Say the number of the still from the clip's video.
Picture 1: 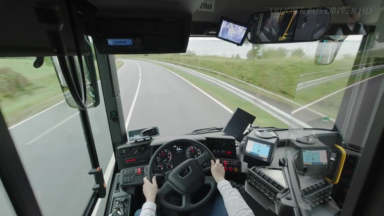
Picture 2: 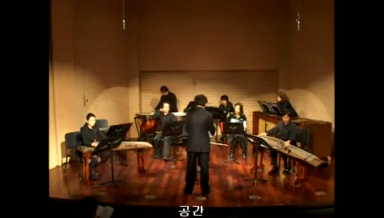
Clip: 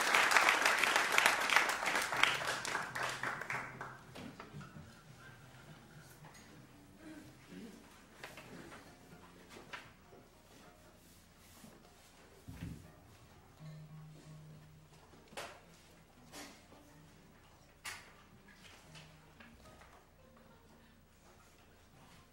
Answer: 2